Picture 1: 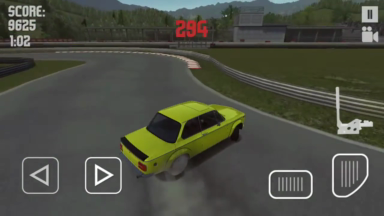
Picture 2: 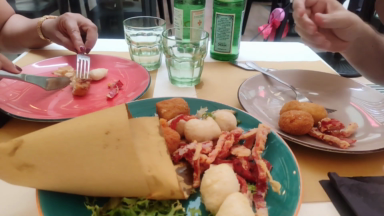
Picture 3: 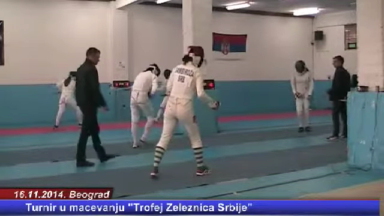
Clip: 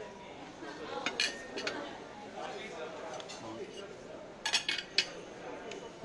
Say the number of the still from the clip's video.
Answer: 2